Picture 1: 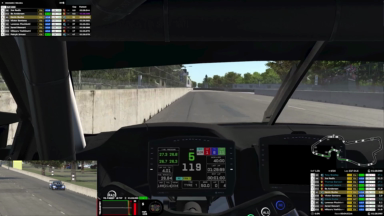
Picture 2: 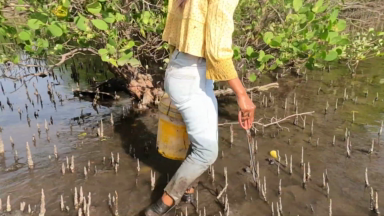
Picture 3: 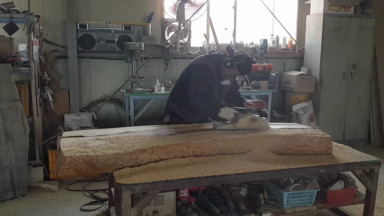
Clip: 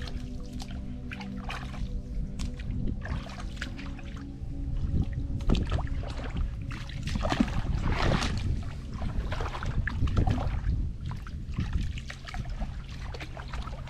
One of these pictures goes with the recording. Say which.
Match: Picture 2